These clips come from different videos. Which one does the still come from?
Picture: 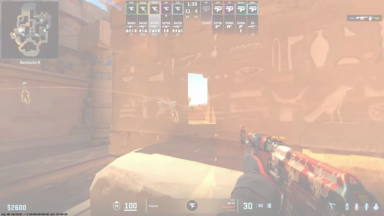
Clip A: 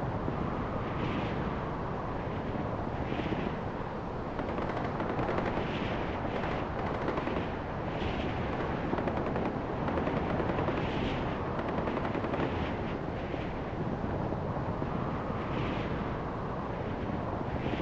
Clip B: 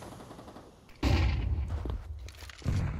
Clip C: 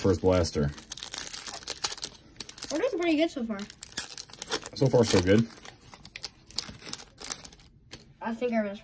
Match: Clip B